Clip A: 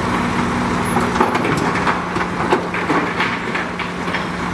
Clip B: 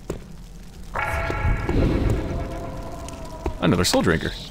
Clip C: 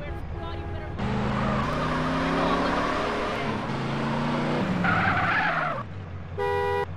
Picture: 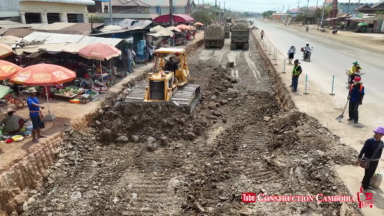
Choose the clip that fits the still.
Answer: A